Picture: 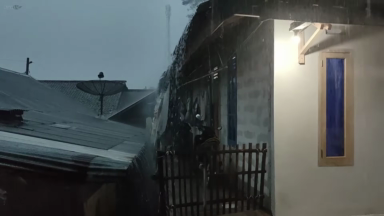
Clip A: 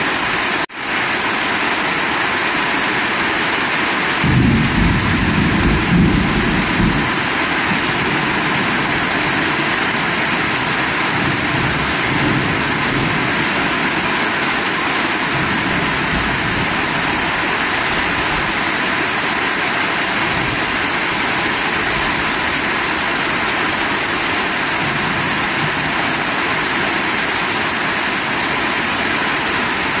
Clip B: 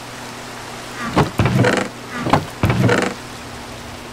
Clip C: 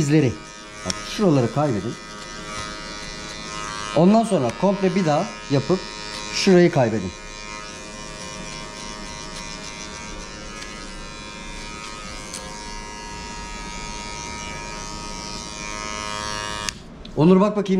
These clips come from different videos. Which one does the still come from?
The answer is A